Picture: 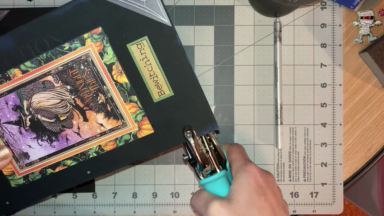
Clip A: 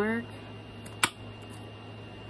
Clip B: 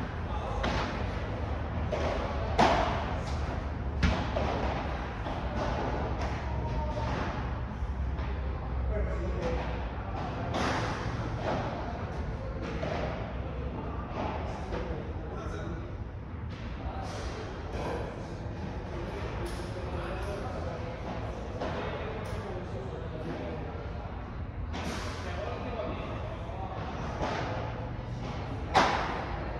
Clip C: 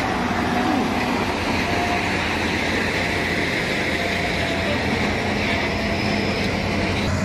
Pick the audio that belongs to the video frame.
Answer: A